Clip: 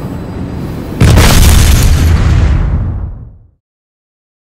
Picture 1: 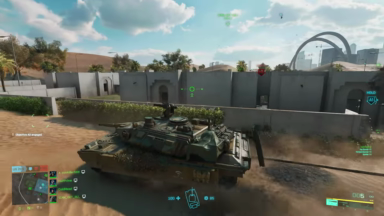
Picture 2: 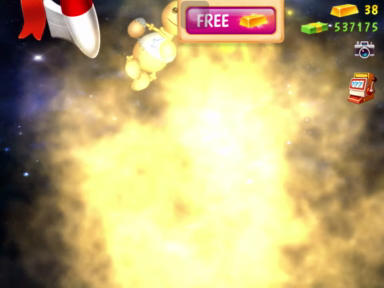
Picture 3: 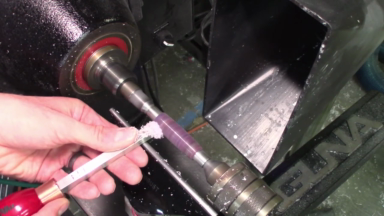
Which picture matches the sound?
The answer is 2